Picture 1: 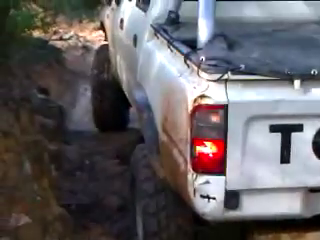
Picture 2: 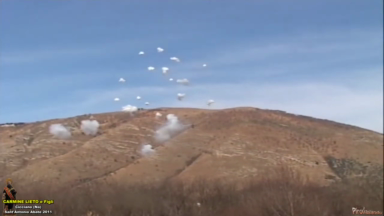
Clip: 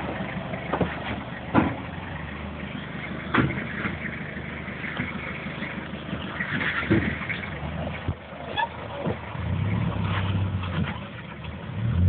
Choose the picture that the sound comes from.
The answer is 1